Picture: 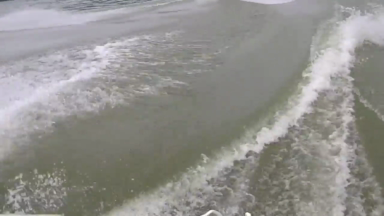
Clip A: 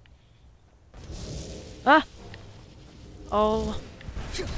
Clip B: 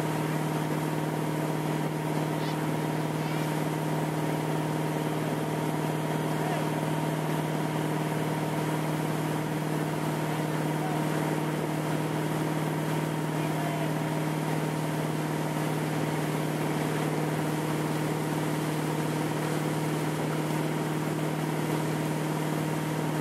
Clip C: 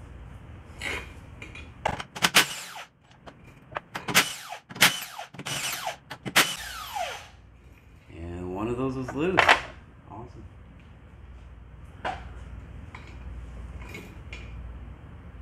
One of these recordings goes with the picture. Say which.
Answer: B